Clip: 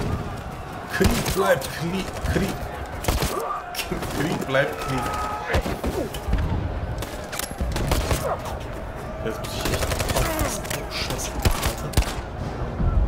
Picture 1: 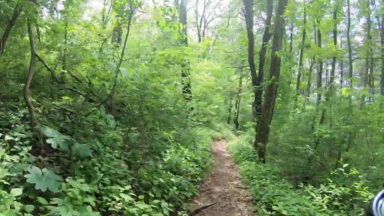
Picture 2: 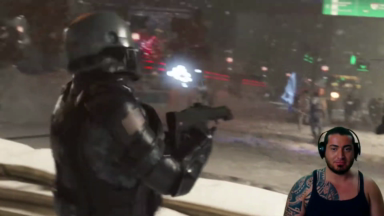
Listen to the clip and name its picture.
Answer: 2